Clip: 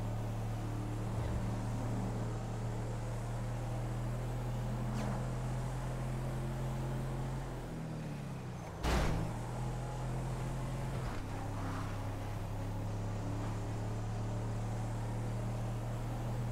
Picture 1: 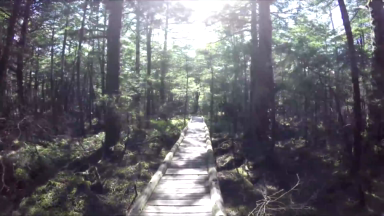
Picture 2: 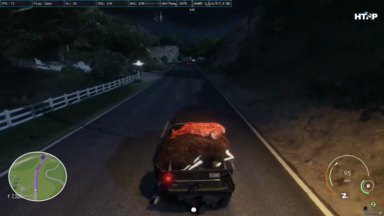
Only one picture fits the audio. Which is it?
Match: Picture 2